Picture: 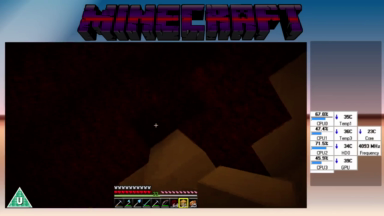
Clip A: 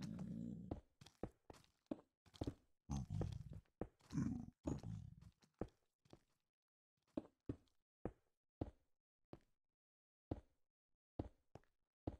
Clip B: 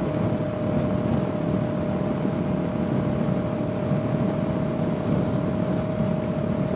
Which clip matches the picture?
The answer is A